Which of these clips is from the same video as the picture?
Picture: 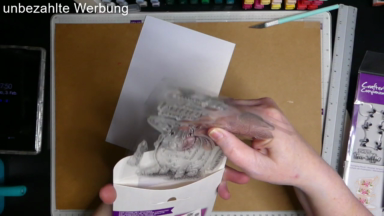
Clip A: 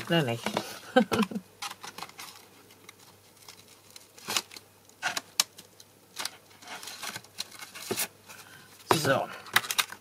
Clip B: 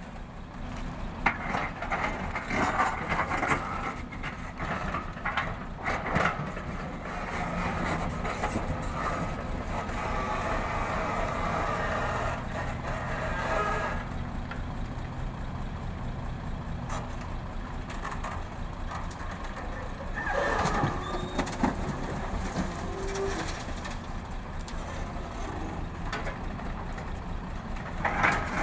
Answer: A